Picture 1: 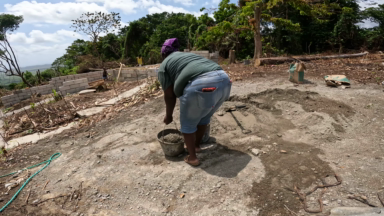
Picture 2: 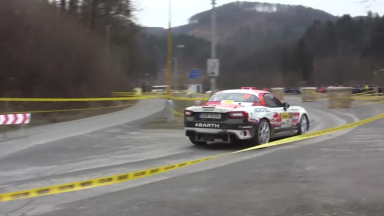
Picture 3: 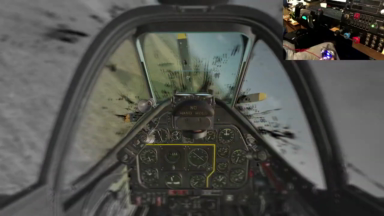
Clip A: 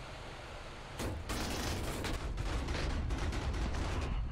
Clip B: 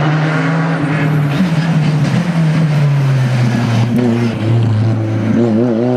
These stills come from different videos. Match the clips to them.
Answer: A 3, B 2